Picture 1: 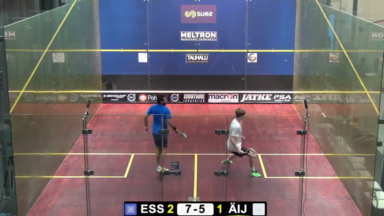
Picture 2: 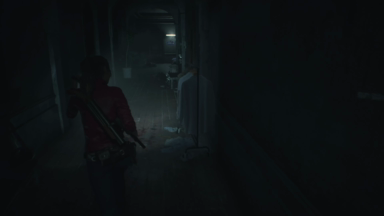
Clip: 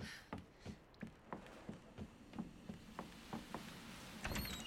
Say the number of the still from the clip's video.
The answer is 2